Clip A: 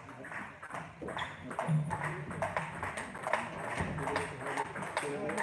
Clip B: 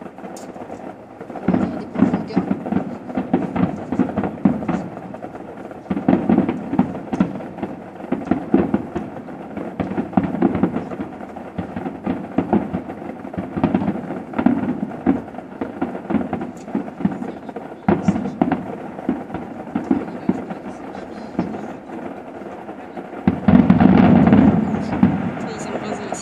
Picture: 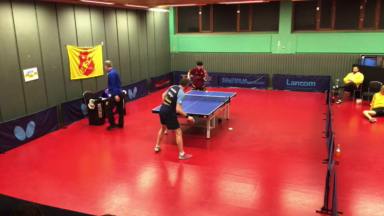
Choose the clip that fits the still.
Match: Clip A